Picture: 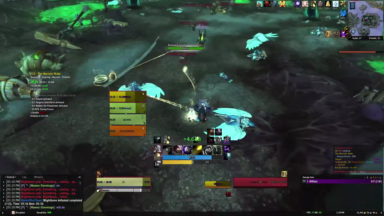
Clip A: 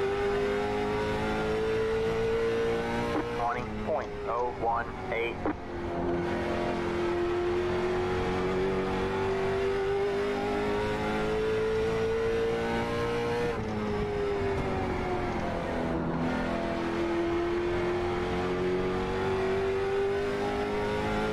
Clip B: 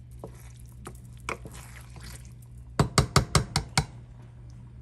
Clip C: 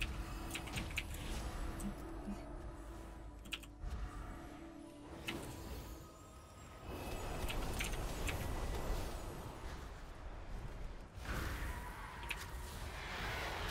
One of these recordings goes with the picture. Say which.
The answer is C